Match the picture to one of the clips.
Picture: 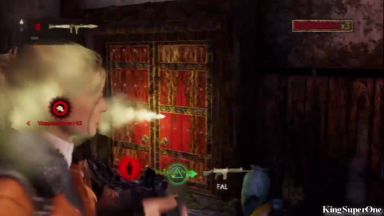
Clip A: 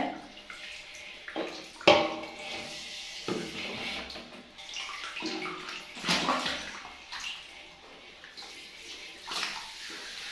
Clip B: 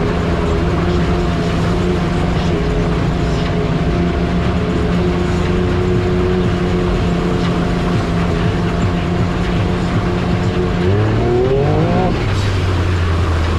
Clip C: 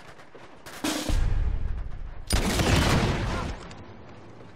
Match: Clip C